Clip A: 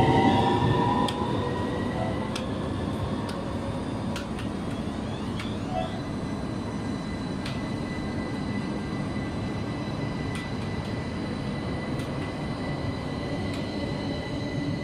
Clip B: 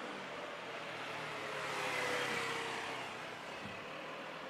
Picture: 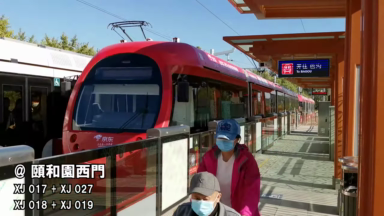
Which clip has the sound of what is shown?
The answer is A